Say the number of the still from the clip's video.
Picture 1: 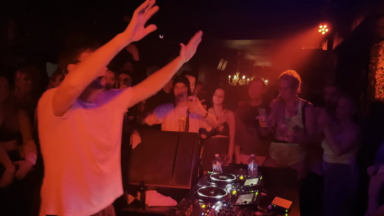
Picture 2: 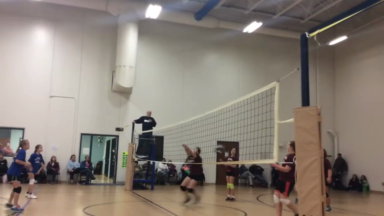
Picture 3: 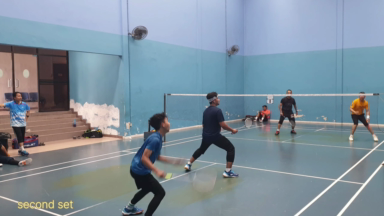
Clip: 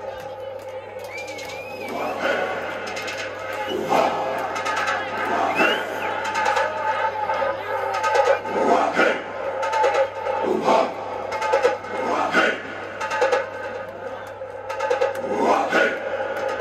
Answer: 1